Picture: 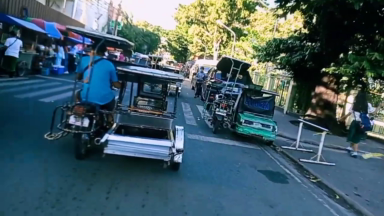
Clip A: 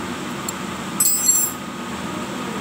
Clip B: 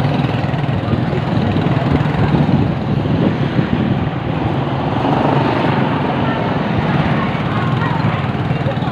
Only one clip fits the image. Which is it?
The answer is B